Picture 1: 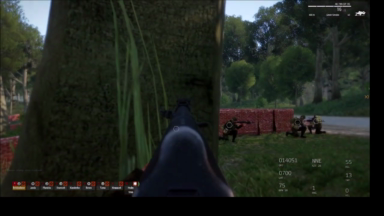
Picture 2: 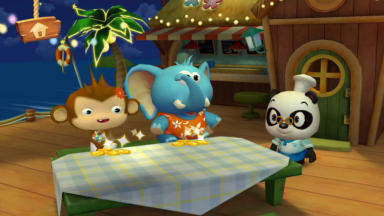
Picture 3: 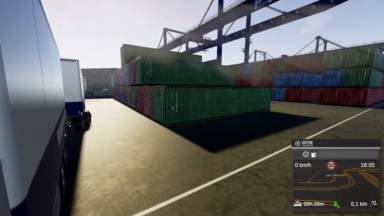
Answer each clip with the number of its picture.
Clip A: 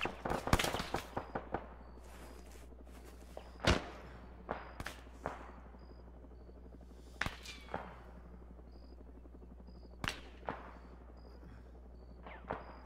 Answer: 1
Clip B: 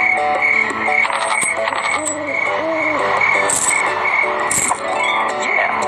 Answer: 2